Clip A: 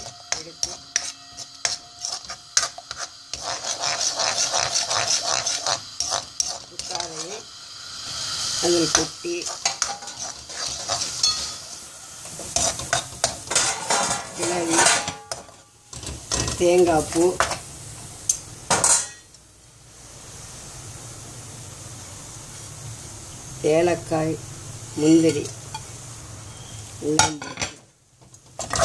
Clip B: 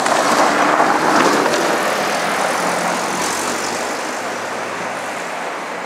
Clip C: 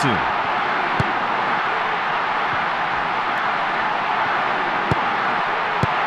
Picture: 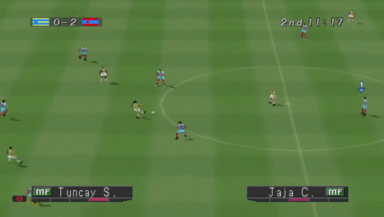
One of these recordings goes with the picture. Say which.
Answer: C